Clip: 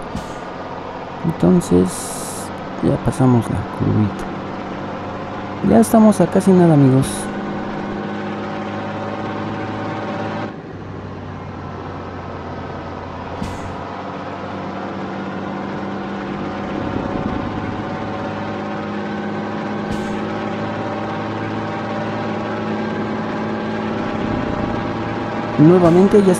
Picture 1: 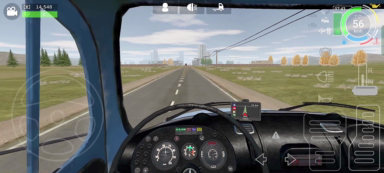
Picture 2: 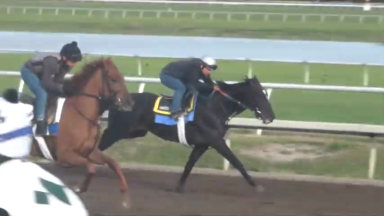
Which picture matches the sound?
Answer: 1